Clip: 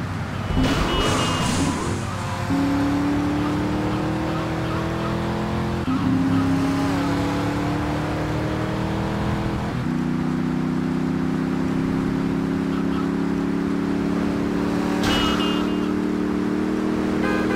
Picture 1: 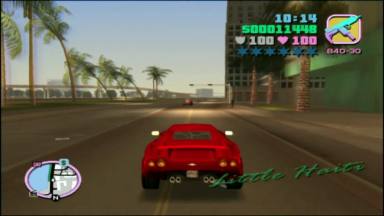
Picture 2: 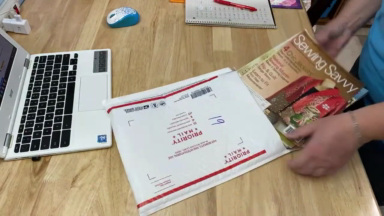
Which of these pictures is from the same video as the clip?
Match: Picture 1